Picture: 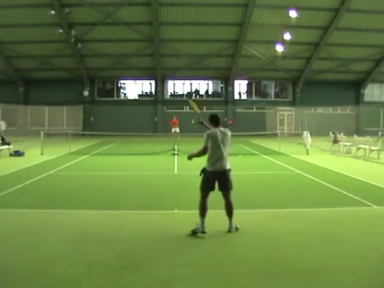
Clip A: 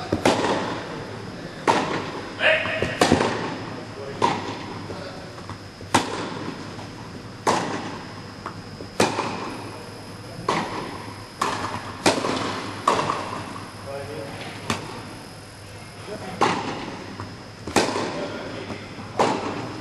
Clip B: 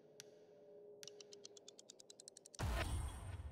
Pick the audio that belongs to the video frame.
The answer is A